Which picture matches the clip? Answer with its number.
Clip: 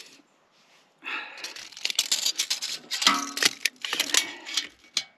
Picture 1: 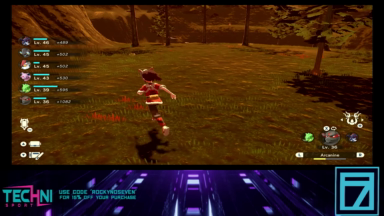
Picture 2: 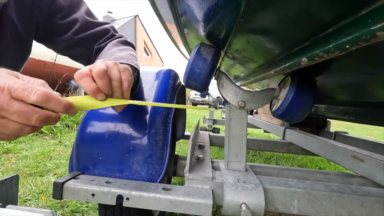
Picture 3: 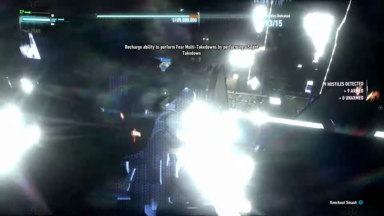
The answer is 2